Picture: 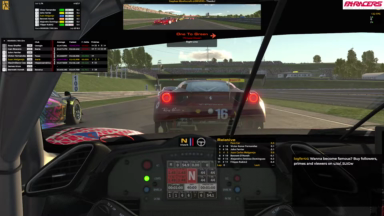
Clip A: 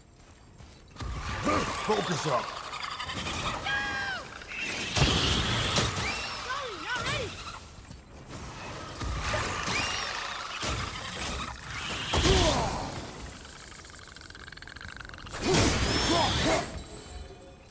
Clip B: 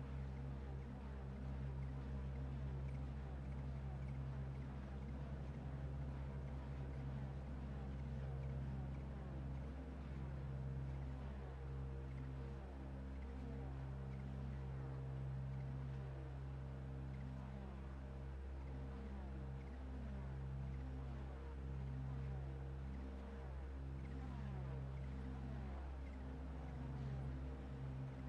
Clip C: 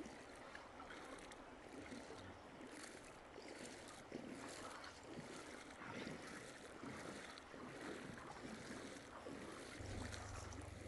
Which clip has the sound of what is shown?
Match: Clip B